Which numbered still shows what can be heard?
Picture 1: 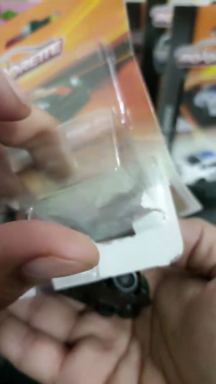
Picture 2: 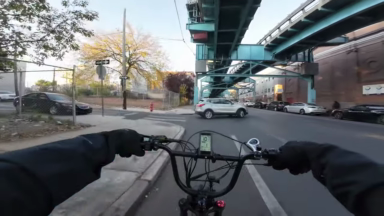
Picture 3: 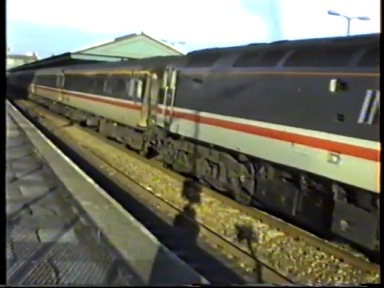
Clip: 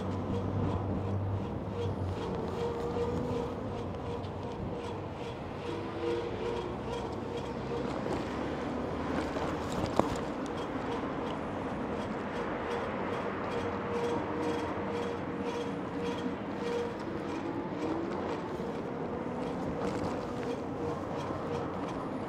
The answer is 2